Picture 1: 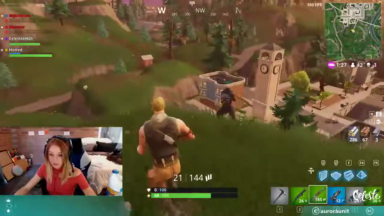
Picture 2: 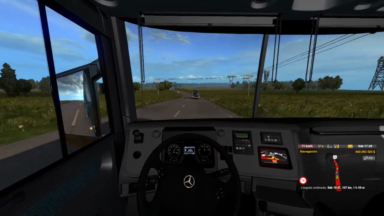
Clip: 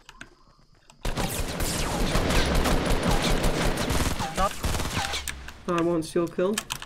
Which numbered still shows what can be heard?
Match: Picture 1